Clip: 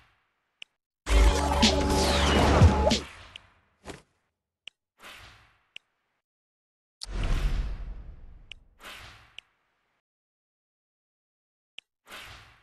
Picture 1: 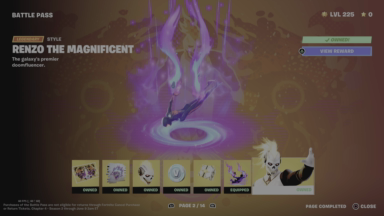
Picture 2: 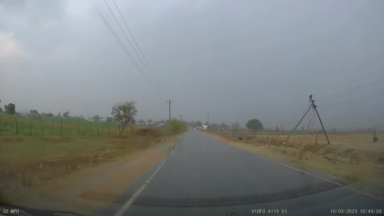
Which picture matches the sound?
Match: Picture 1